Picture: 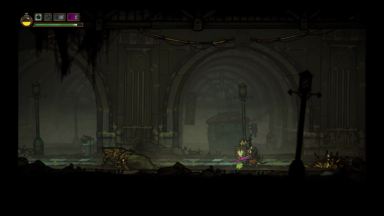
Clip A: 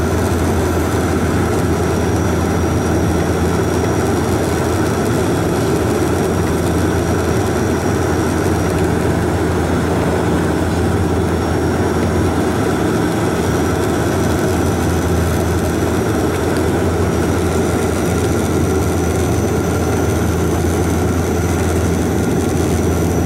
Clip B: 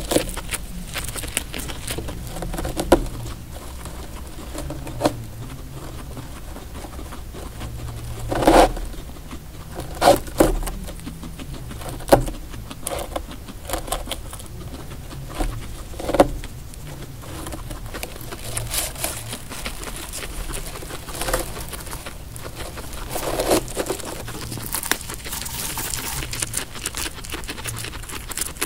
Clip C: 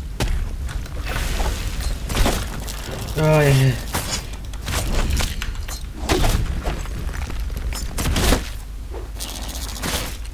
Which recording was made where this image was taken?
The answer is C